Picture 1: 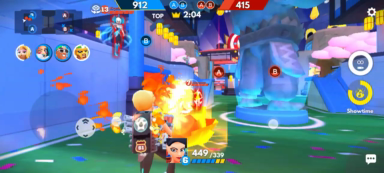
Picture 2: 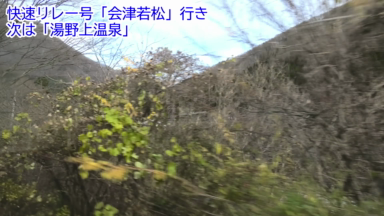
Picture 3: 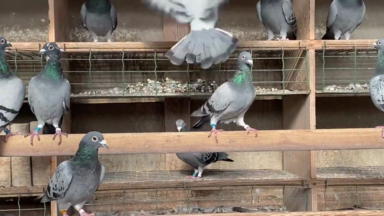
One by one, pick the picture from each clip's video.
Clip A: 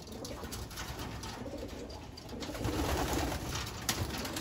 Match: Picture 3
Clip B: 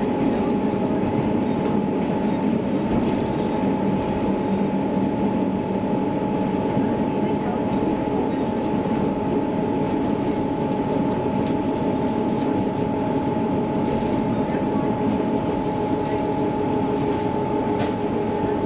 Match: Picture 2